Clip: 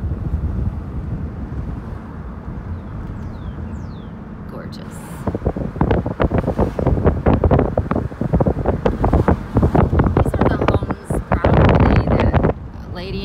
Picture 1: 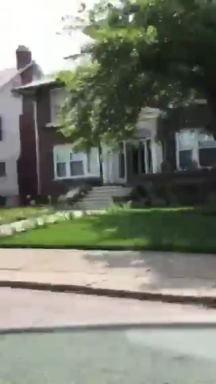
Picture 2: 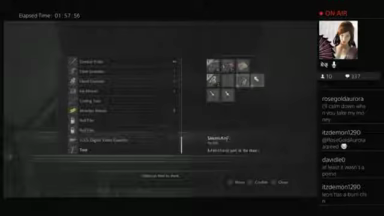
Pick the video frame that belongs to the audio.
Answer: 1